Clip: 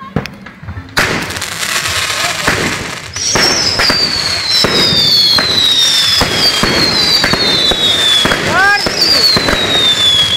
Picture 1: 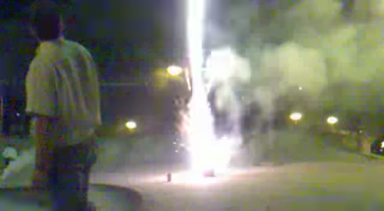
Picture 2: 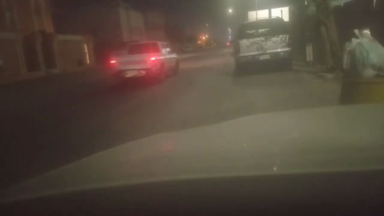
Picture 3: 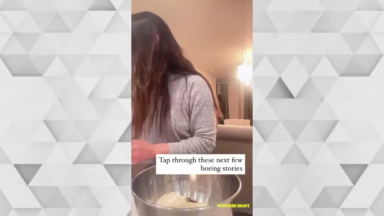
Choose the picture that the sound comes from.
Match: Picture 1